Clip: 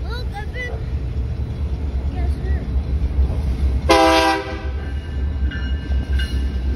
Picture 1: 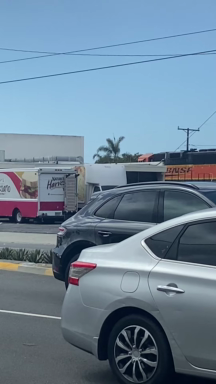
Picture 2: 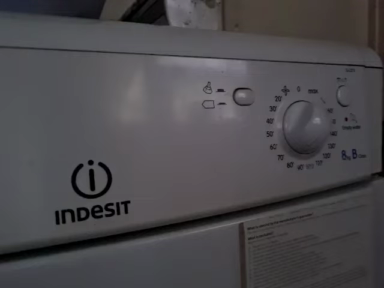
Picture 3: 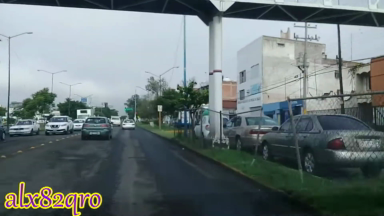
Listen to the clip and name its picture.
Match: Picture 1